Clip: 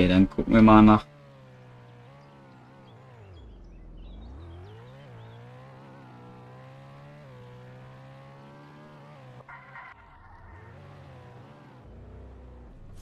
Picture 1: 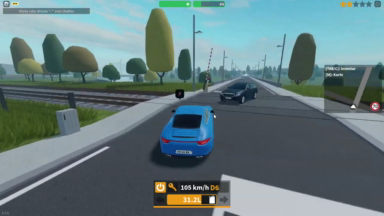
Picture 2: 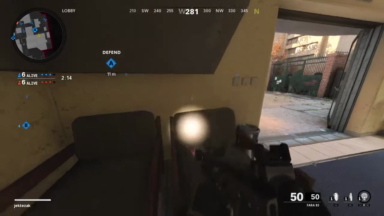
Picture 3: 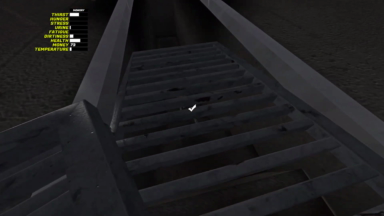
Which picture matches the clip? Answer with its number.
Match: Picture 1